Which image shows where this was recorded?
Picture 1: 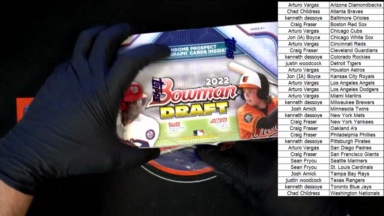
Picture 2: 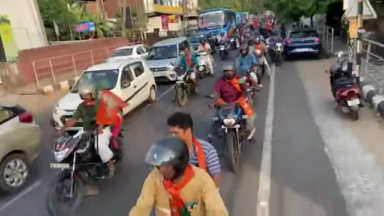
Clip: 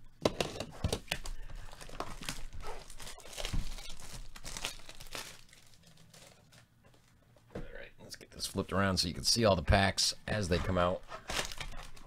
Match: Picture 1